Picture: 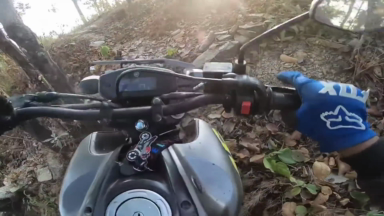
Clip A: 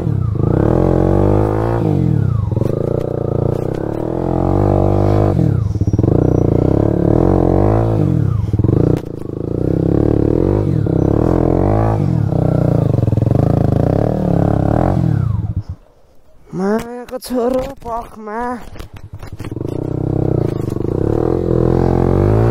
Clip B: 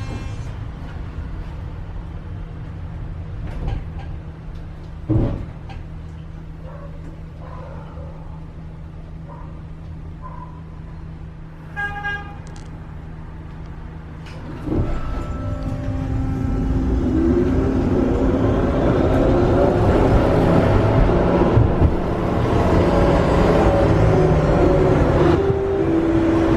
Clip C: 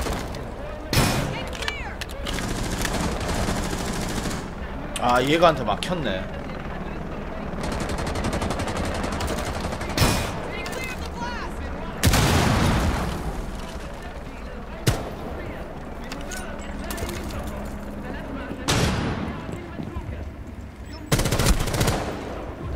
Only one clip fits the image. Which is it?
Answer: A